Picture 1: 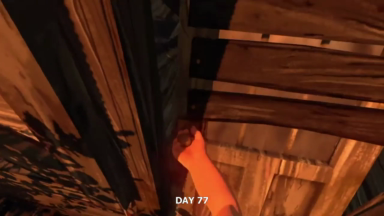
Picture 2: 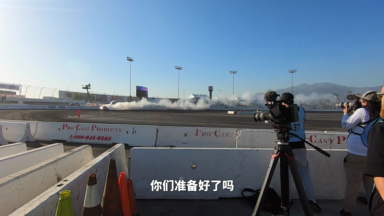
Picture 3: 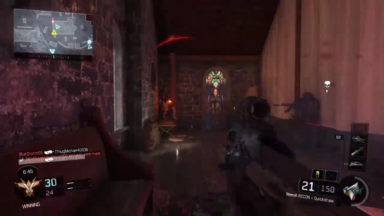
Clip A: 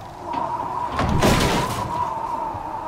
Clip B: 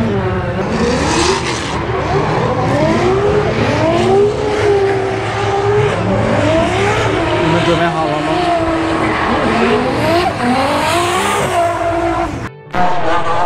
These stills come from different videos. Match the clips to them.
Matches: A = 1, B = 2